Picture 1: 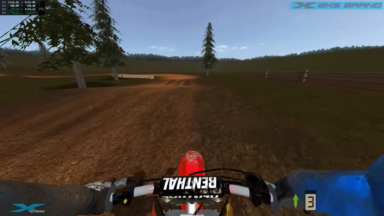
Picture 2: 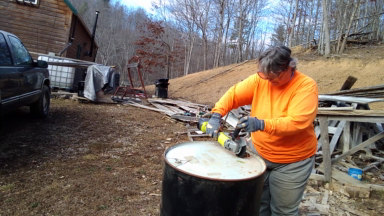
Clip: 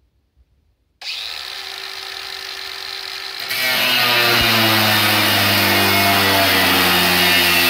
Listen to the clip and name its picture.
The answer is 2